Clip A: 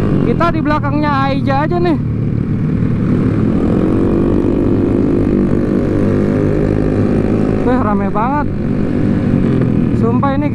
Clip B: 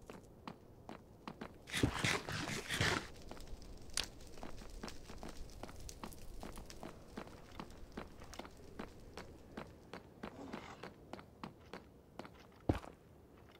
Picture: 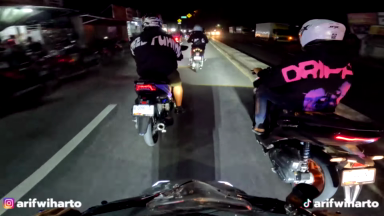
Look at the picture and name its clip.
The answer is A